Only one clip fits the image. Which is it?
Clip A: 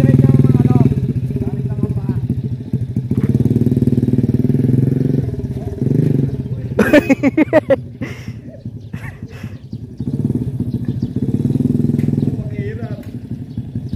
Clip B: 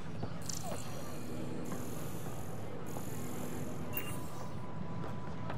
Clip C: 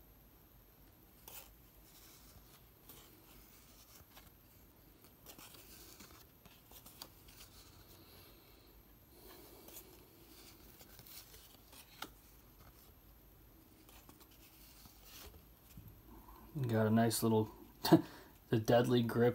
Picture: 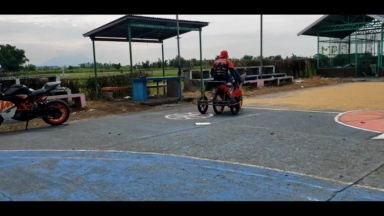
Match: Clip A